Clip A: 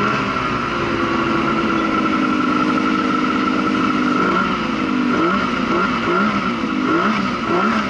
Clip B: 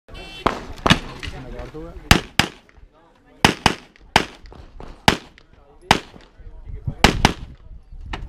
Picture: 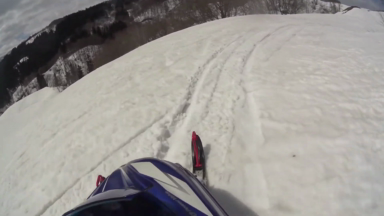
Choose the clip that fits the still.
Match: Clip A